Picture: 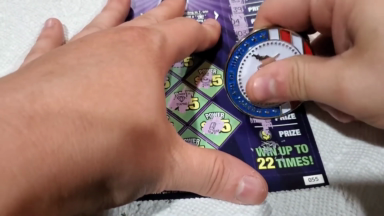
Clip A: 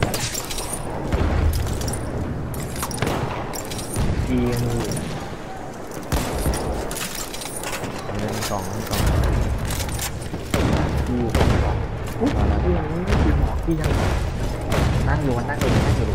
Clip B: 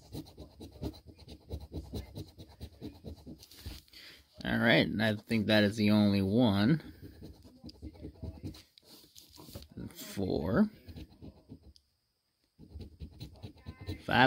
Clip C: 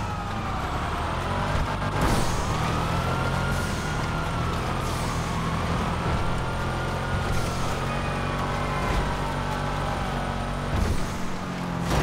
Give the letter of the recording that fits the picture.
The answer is B